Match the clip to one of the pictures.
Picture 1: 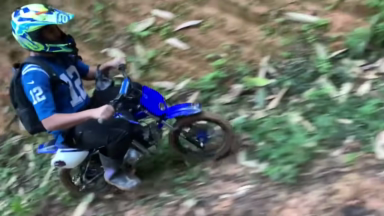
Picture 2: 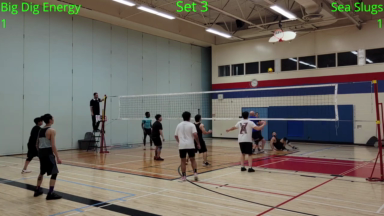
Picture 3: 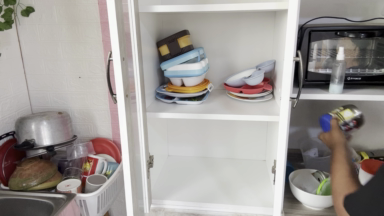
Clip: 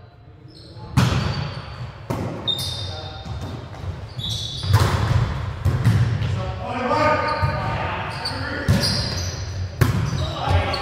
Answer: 2